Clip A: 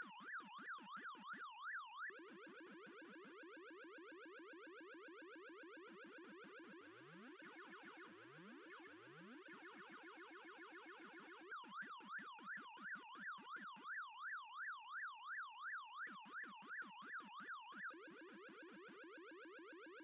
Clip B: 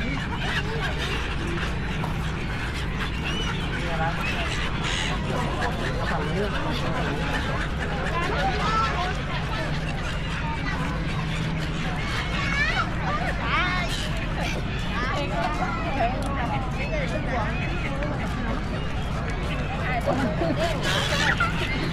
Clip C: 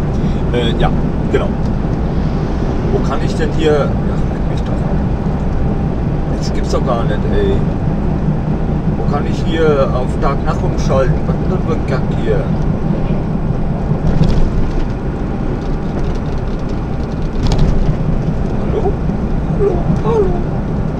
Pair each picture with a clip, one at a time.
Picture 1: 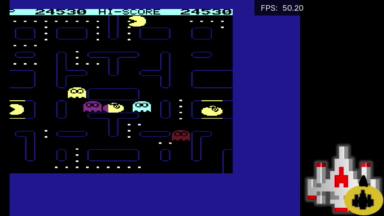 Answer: A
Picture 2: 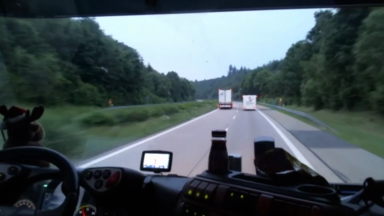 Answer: C